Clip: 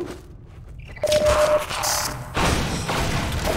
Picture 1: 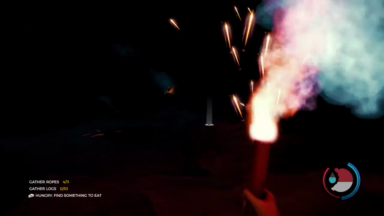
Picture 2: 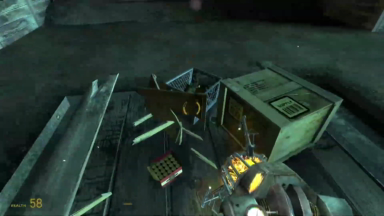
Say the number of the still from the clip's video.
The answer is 2